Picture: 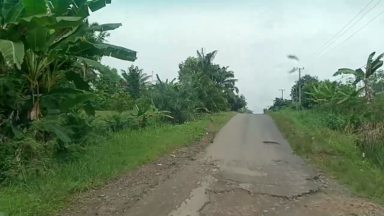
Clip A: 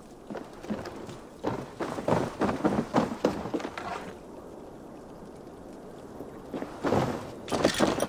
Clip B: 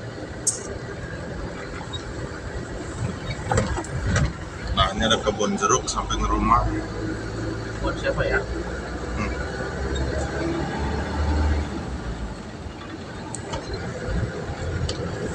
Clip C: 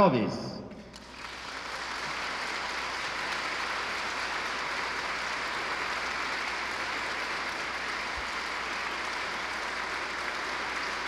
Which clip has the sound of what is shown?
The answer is B